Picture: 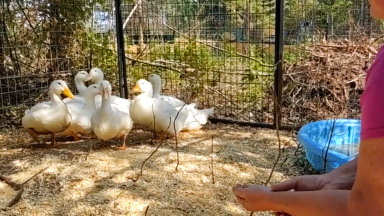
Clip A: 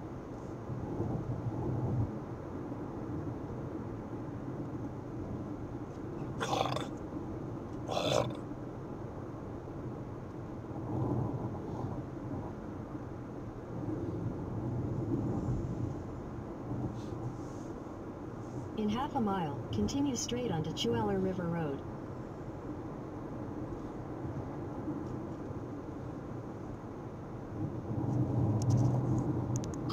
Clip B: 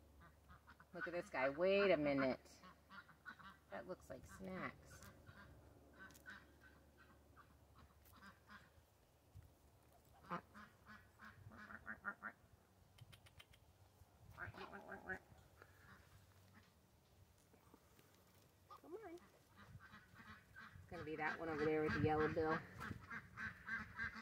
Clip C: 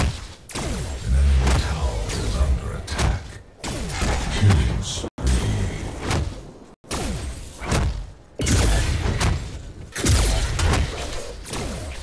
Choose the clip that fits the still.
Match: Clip B